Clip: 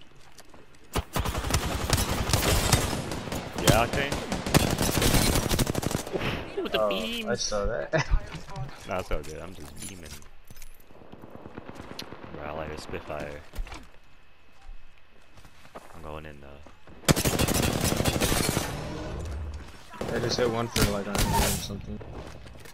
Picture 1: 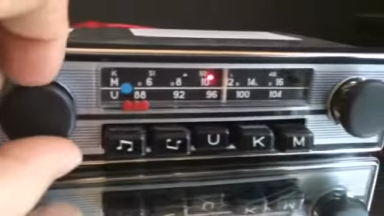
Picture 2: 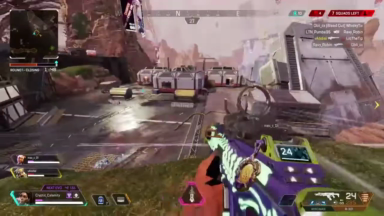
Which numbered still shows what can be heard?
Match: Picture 2